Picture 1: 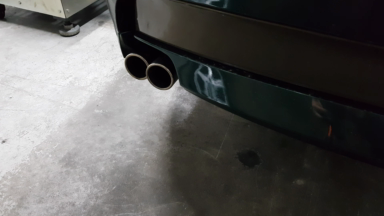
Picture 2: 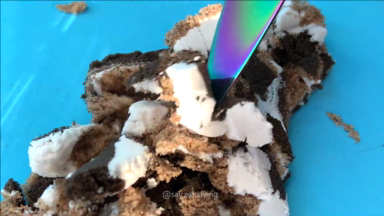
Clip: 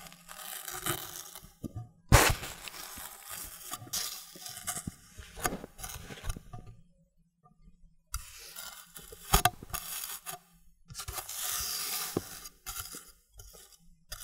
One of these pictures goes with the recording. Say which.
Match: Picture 2